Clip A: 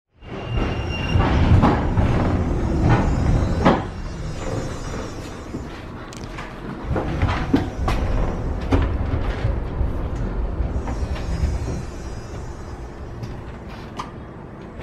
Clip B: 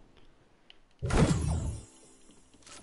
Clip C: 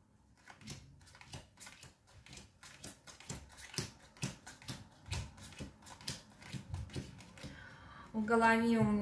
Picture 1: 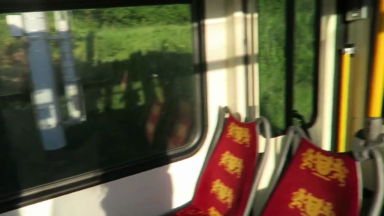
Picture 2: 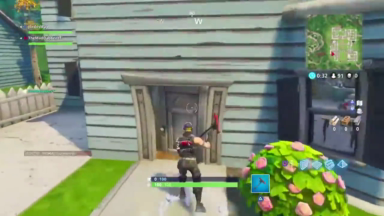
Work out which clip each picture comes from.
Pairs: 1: A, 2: B